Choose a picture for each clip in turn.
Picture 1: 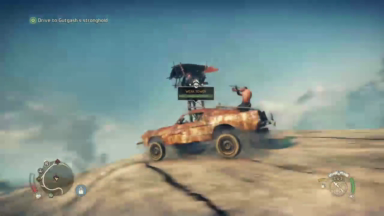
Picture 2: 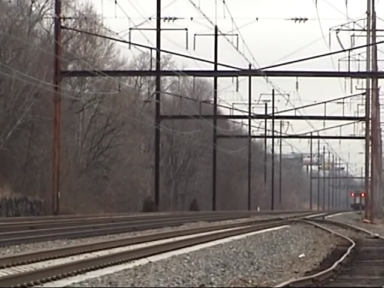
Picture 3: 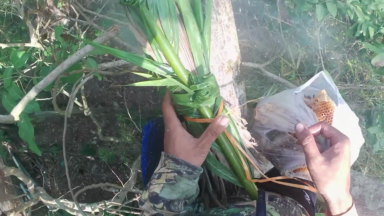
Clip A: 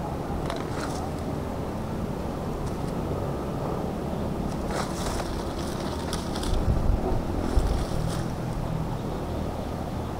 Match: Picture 3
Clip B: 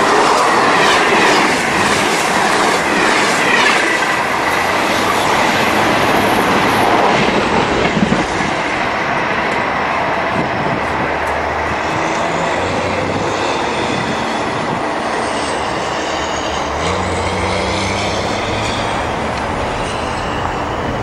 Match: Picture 2